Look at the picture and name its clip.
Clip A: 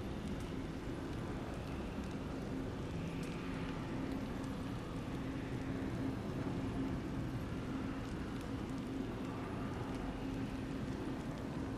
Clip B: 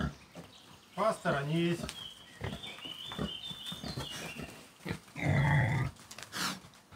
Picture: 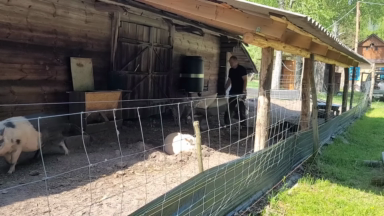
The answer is B